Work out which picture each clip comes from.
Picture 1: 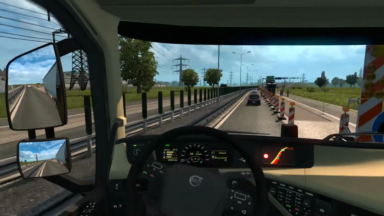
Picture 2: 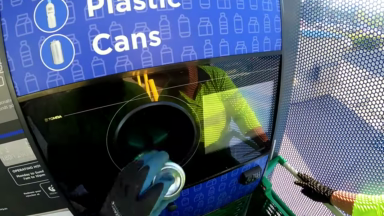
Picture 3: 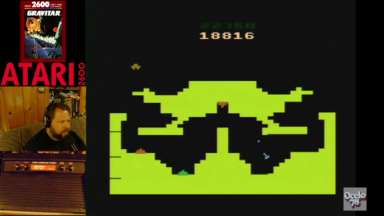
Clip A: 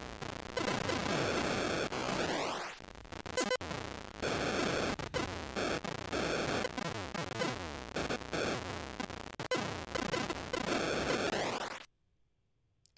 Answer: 3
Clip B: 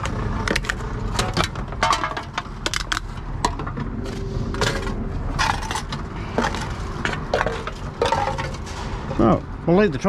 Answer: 2